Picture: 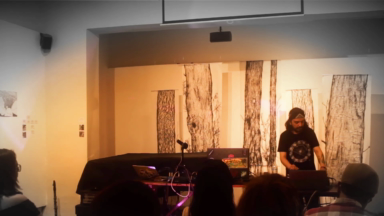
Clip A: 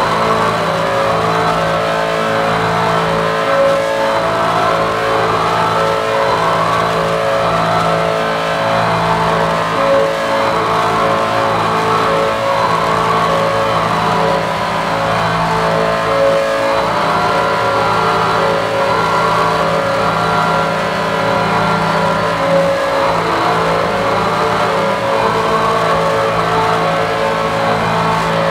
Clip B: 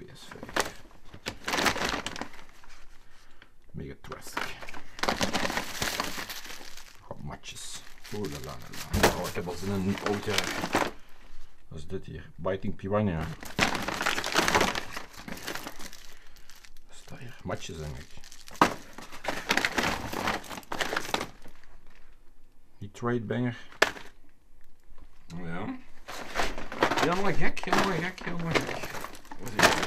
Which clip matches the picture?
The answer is A